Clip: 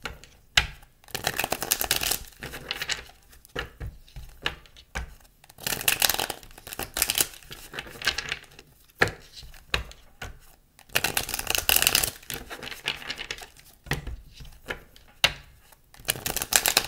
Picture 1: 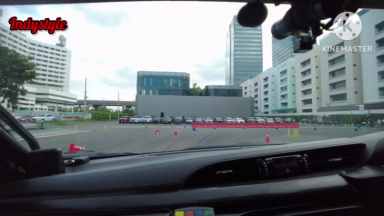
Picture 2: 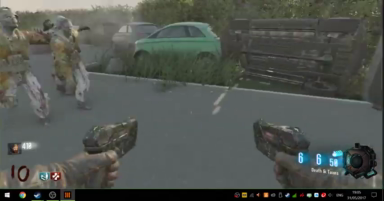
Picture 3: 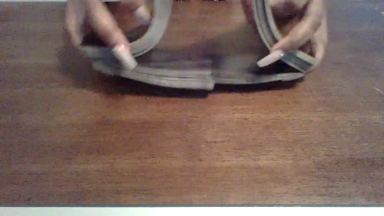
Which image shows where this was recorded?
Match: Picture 3